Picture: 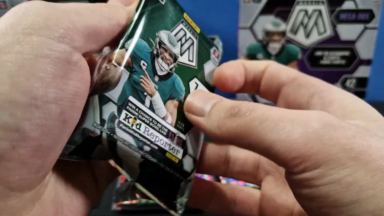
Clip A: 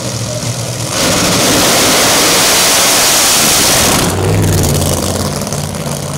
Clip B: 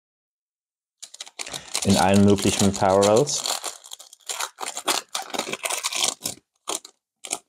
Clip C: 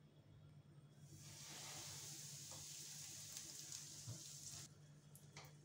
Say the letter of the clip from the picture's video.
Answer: B